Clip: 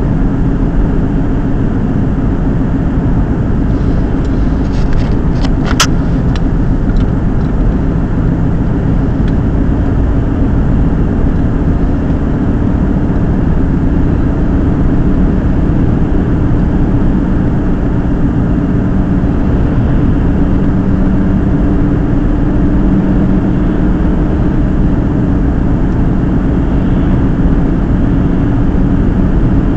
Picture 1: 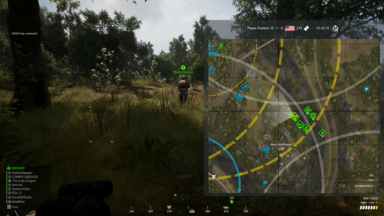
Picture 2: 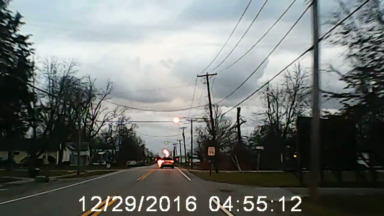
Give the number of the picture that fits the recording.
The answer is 2